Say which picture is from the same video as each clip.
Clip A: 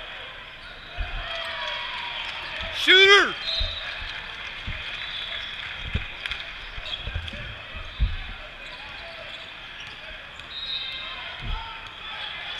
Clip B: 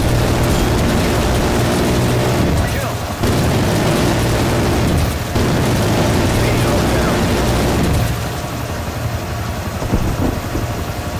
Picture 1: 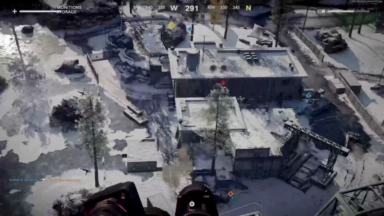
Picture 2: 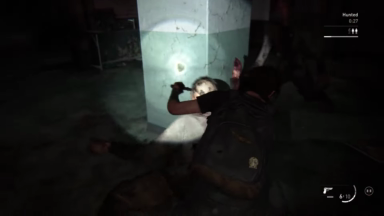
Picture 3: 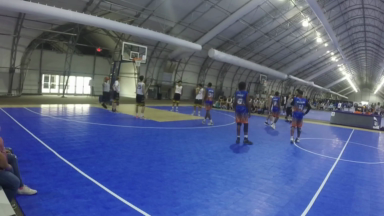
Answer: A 3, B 1